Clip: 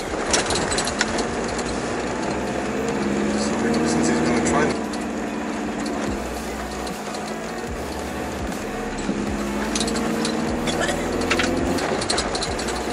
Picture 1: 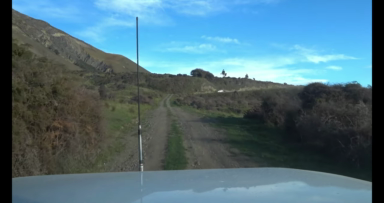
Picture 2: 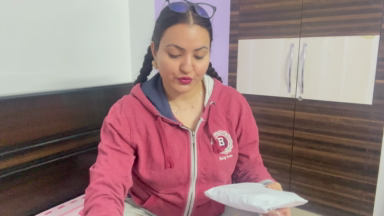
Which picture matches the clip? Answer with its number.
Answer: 1